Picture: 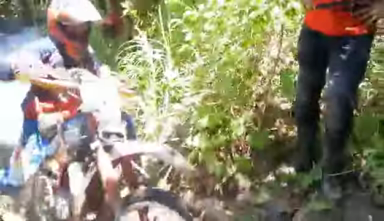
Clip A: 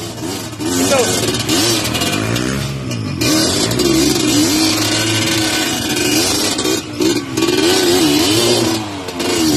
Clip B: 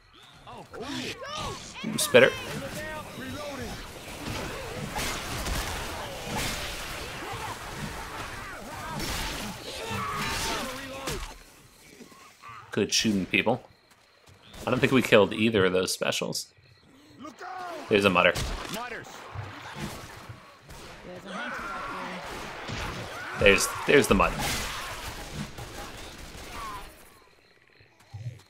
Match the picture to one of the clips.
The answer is A